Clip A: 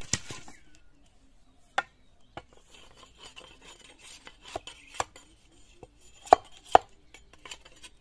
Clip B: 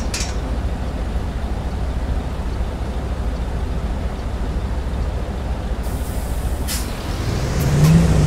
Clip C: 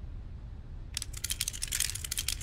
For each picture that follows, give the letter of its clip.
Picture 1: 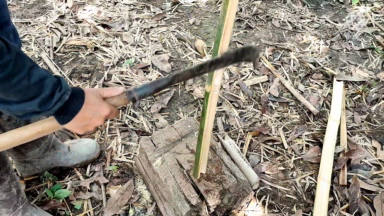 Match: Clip A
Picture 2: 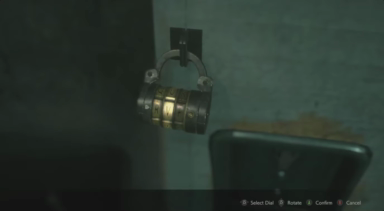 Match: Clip C